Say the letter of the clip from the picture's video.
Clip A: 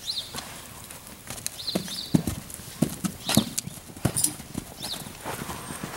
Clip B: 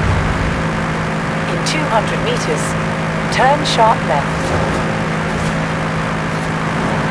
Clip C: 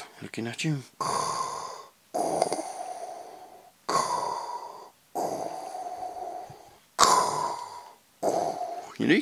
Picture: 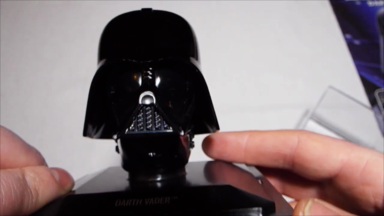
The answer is C